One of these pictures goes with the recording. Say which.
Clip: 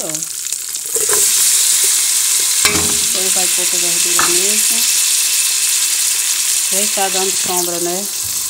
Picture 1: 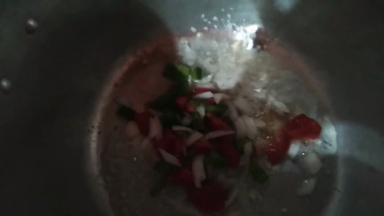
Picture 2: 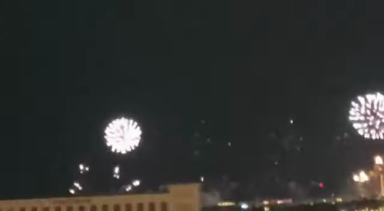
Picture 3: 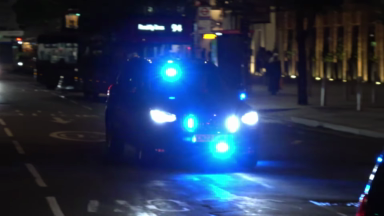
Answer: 1